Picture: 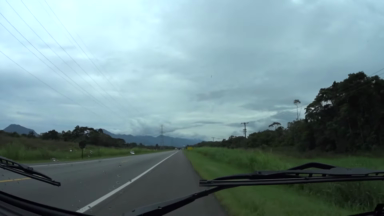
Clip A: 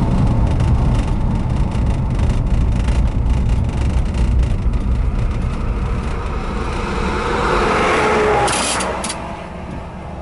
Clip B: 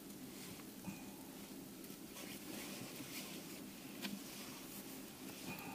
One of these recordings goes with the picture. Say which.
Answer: A